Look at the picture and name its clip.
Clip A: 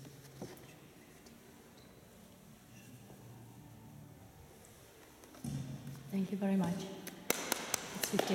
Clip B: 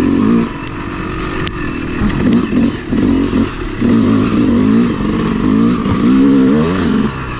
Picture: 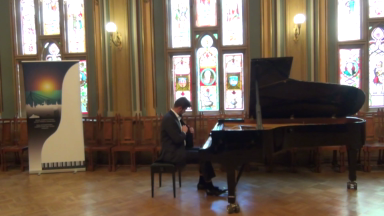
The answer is A